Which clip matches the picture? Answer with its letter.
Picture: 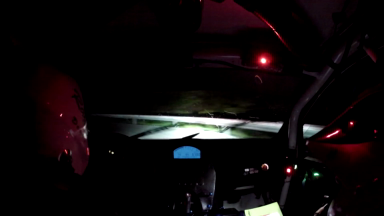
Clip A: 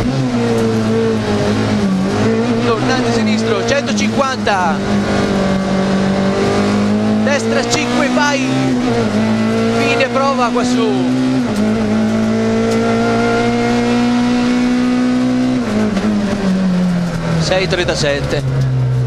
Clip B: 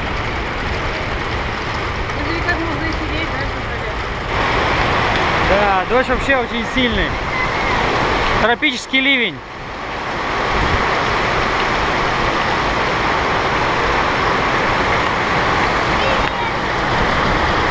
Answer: A